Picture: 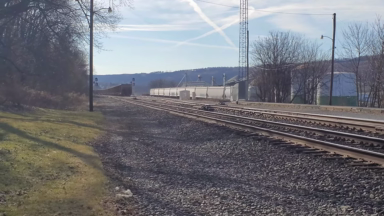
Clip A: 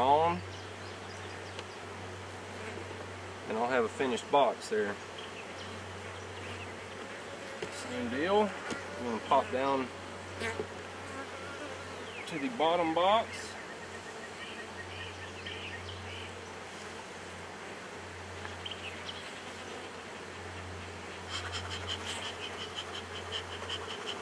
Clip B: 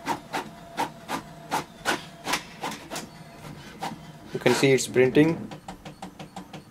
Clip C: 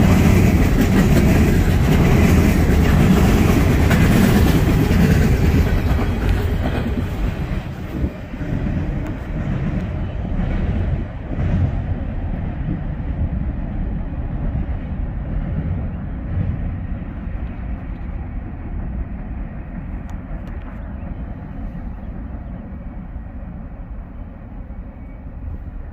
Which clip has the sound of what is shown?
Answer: C